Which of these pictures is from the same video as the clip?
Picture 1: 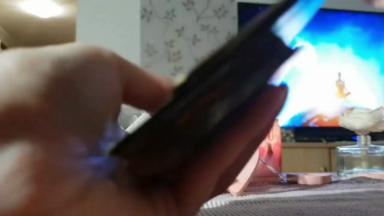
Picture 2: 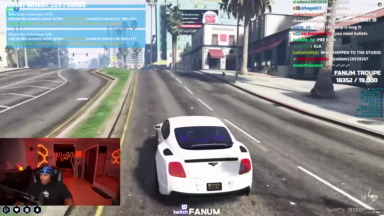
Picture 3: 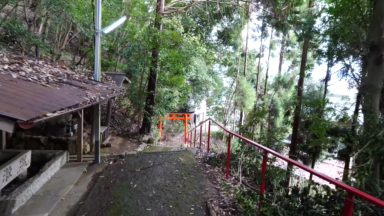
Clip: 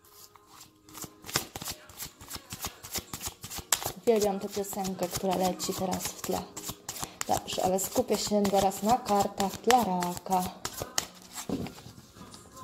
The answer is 1